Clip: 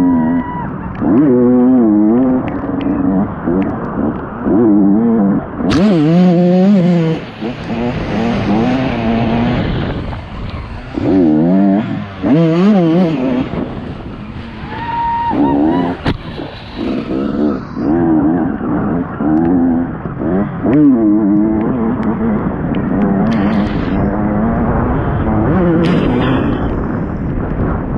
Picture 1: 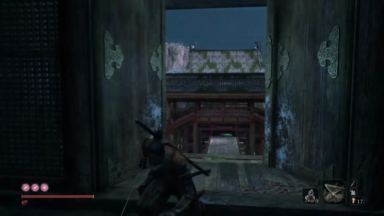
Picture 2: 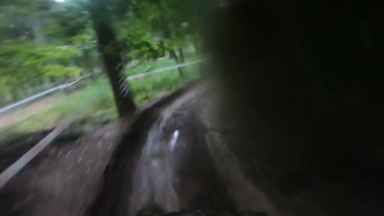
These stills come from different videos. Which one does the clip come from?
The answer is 2